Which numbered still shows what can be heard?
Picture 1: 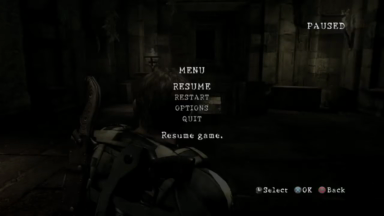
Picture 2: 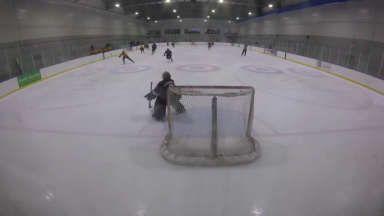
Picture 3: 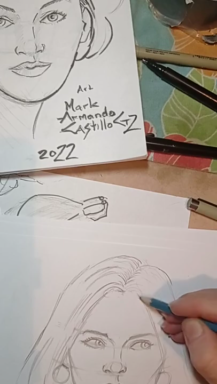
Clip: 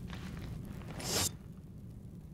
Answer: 1